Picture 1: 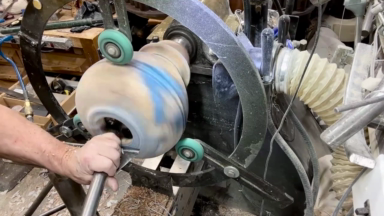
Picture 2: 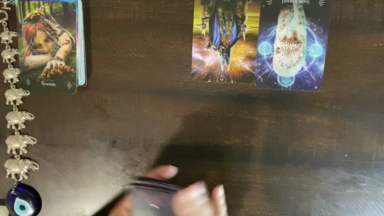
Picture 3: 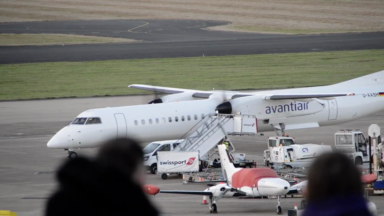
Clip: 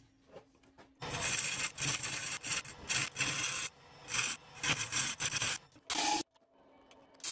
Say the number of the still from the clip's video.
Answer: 1